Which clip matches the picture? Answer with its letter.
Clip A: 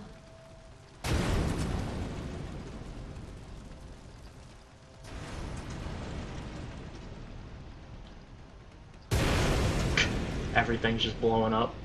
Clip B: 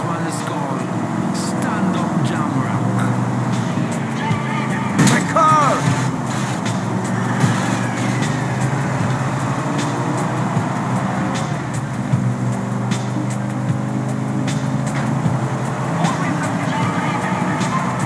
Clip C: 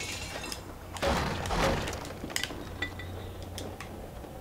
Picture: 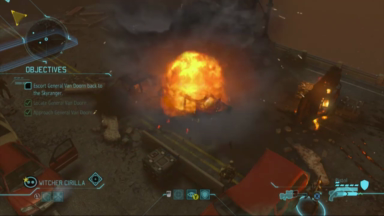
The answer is A